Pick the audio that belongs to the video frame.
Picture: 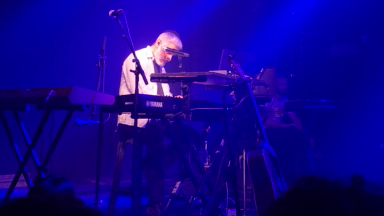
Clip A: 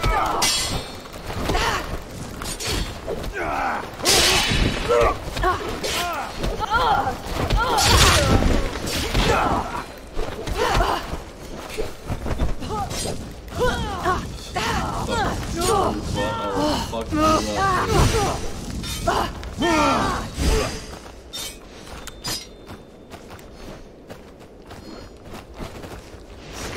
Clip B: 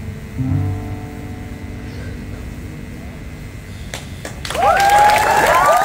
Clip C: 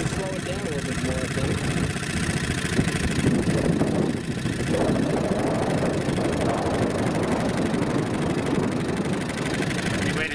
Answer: B